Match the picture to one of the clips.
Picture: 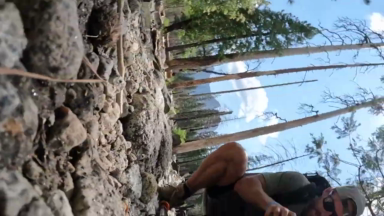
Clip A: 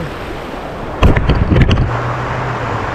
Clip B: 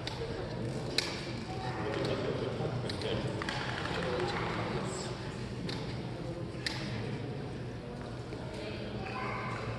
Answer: A